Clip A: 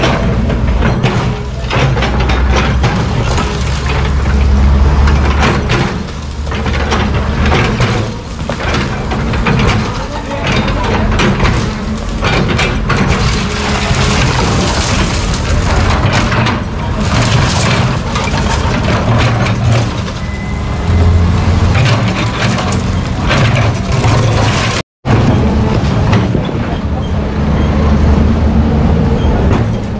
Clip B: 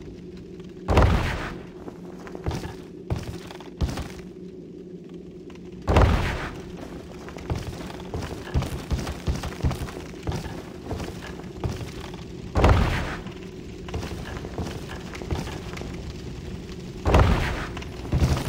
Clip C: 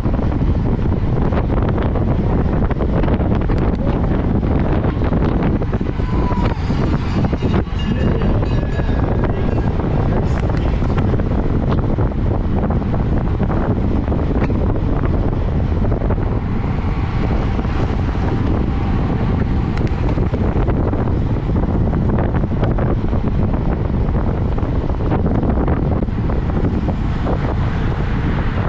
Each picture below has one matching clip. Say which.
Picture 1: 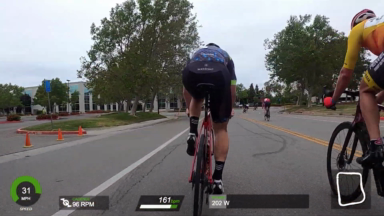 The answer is C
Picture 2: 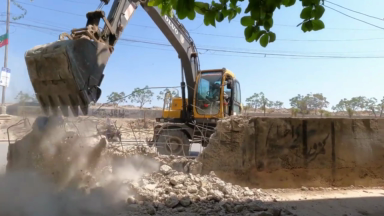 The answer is A